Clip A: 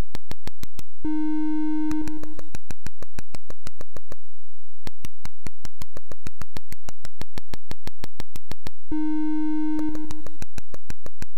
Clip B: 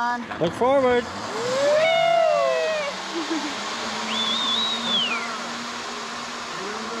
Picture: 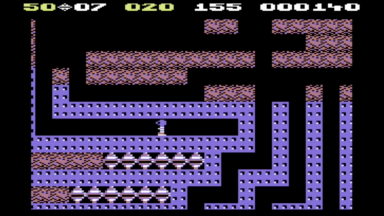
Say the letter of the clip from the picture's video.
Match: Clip A